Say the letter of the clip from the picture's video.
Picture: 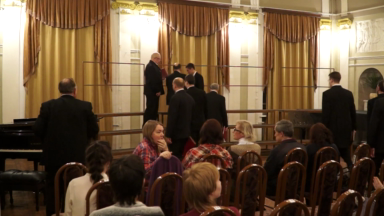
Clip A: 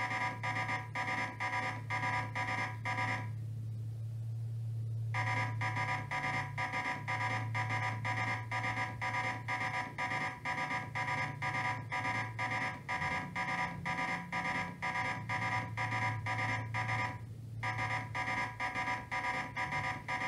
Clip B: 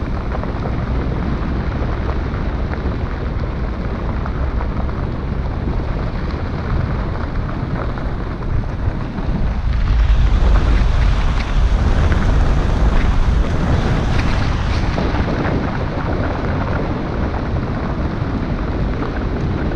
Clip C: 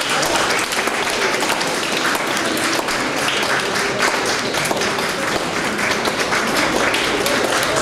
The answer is C